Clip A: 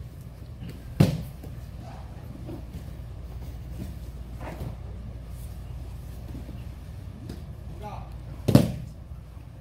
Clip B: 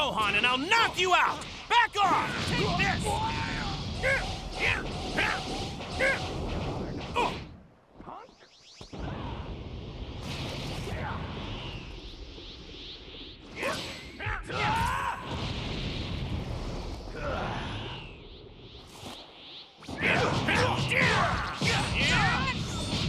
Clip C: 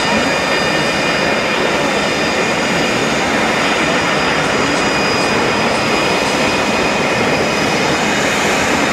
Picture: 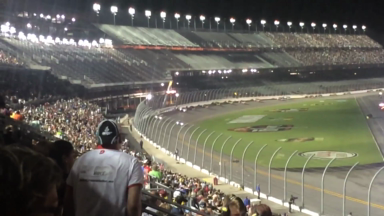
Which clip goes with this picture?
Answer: C